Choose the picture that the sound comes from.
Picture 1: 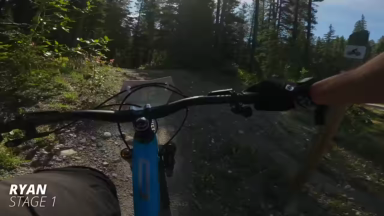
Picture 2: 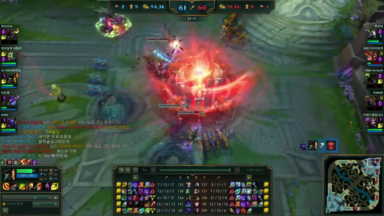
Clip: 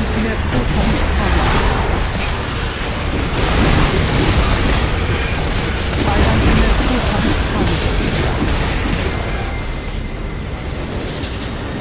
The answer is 2